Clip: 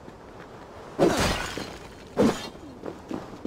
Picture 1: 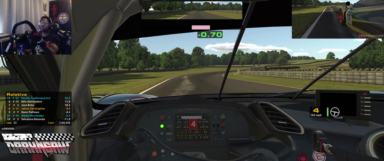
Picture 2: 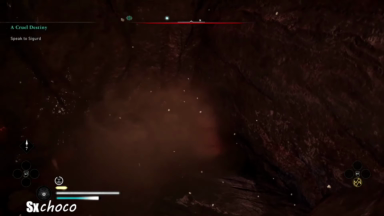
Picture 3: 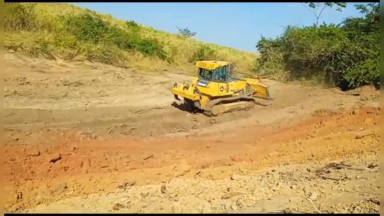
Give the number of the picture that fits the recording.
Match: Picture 2